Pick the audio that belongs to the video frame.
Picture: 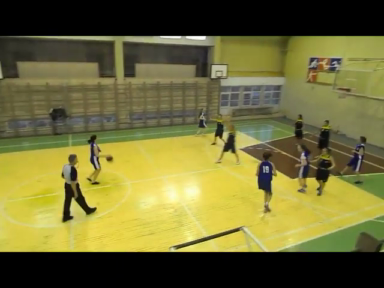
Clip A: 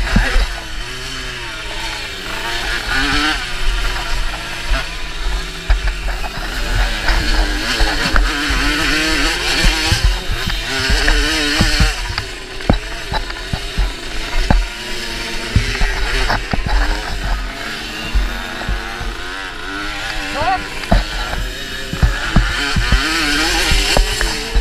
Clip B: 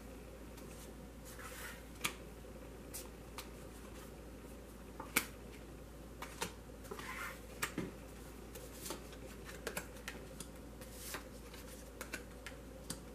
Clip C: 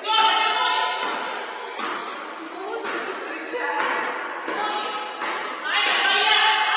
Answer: C